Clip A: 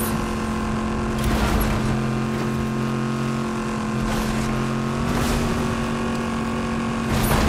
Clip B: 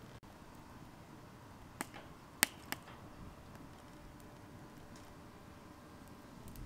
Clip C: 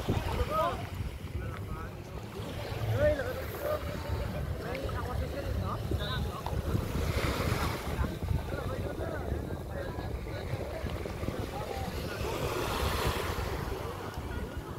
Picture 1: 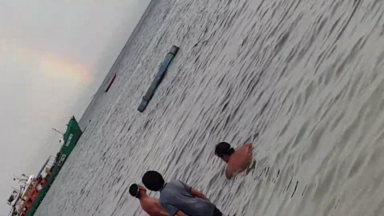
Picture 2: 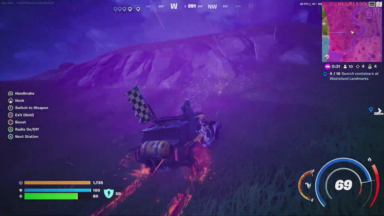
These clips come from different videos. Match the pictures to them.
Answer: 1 C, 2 A